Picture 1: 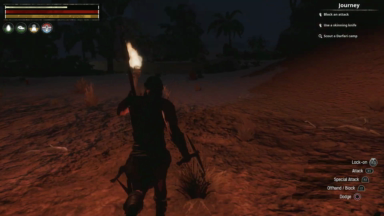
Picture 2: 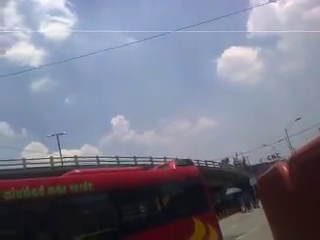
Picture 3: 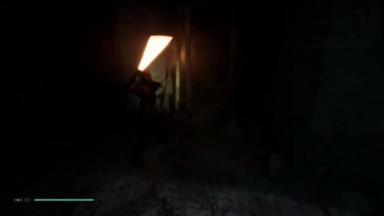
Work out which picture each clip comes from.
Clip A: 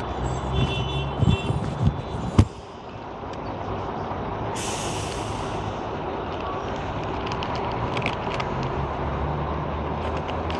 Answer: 2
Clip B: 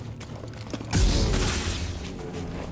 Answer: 3